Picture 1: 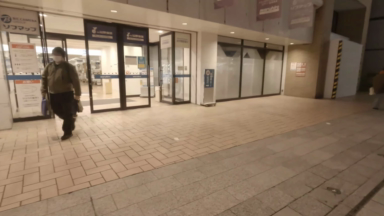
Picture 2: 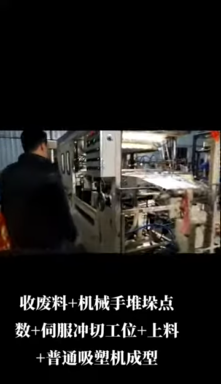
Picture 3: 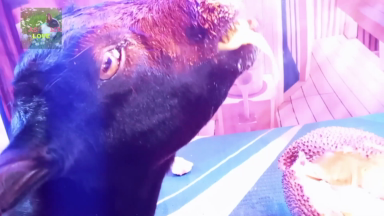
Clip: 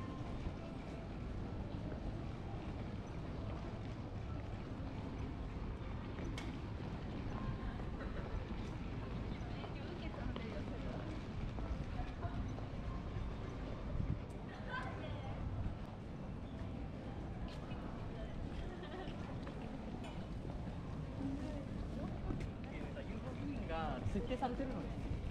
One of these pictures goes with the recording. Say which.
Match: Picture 1